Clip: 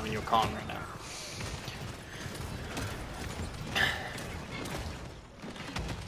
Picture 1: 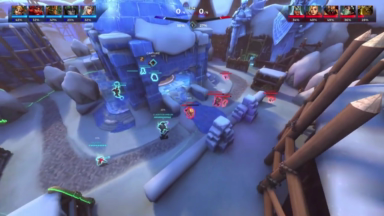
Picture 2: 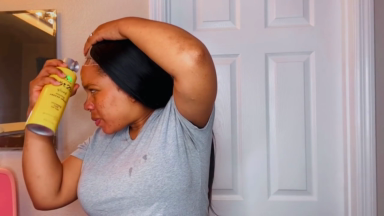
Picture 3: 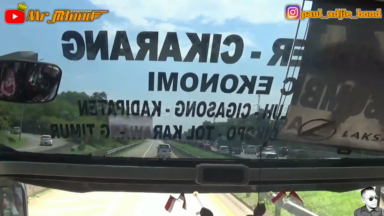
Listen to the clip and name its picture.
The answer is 1